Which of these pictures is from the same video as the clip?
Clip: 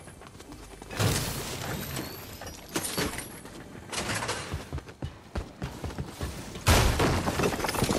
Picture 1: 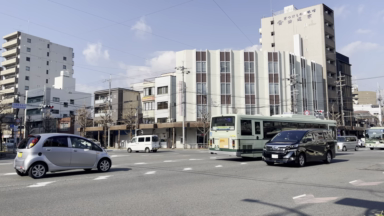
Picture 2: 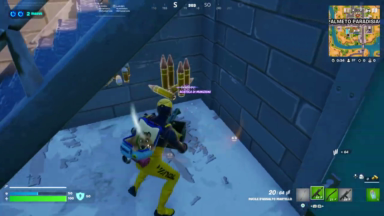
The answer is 2